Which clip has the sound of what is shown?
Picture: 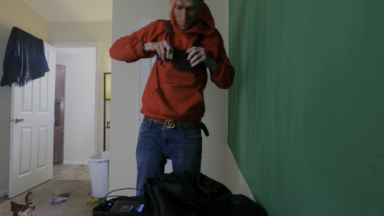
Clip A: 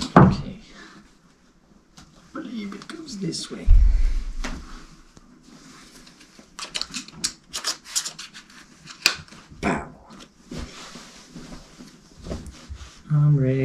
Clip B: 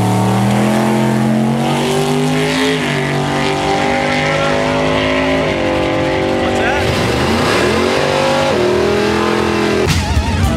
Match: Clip A